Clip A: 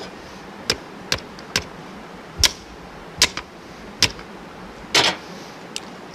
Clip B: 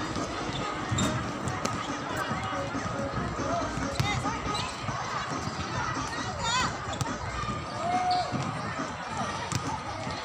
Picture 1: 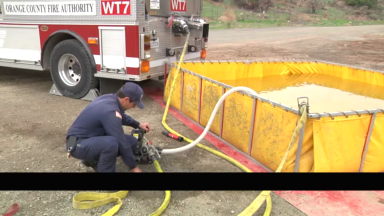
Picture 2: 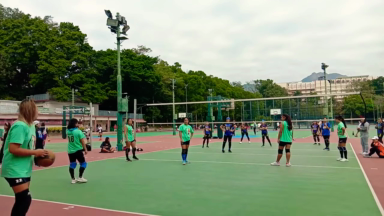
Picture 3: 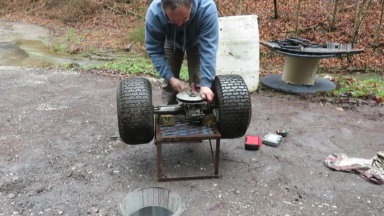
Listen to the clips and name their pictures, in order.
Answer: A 3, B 2